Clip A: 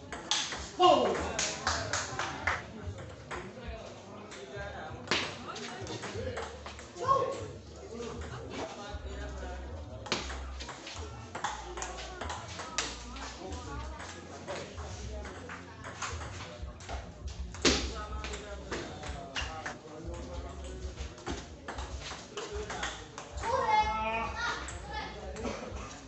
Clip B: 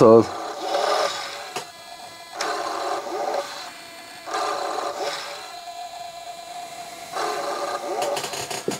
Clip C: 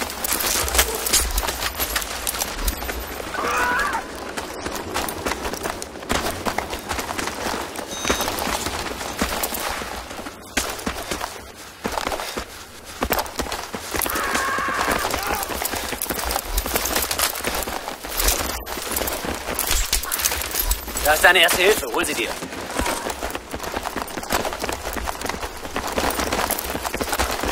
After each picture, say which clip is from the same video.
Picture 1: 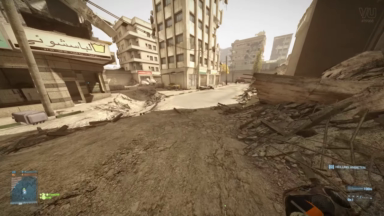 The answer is C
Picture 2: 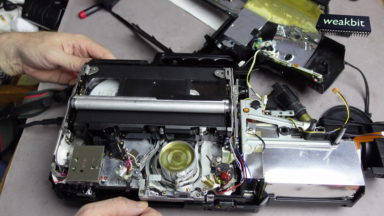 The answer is B